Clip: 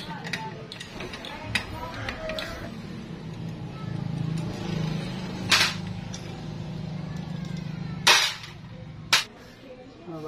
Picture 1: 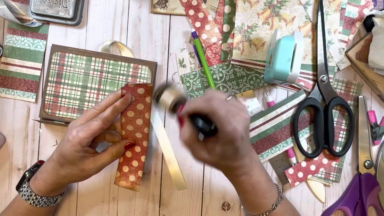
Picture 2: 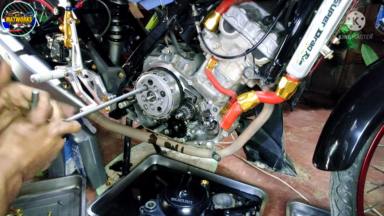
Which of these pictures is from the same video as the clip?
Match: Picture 2